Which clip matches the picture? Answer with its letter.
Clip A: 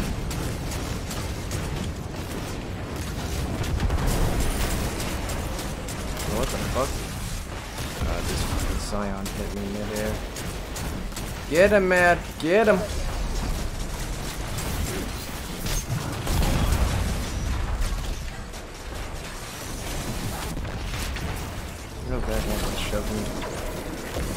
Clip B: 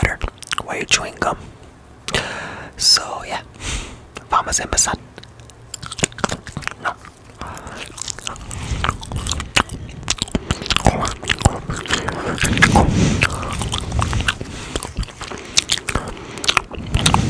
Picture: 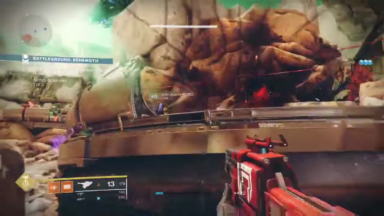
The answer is A